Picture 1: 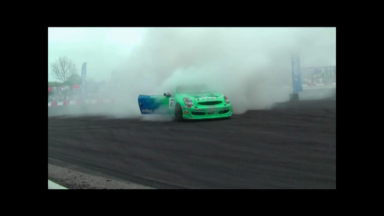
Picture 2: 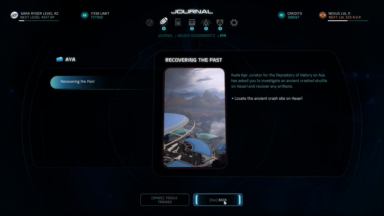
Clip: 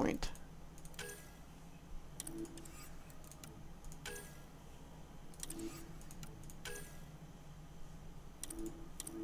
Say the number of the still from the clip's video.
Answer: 2